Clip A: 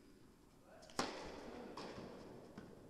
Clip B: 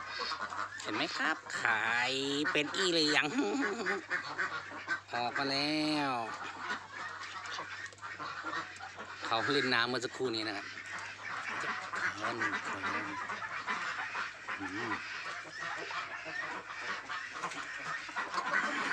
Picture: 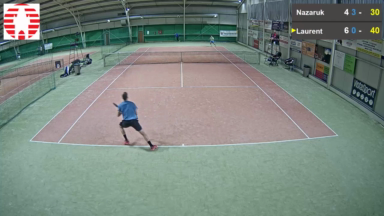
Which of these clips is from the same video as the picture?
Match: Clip A